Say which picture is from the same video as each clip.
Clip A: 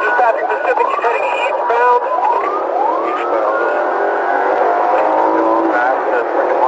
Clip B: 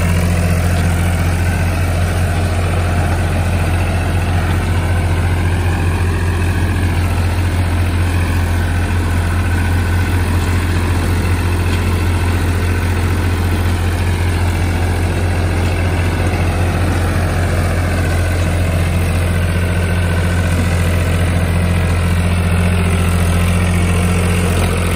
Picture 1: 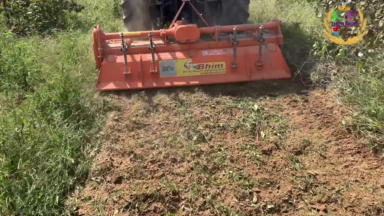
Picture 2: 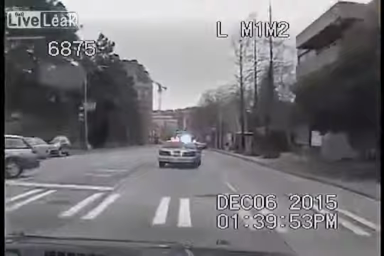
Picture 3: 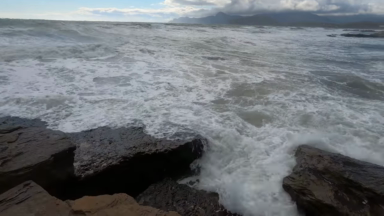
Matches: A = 2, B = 1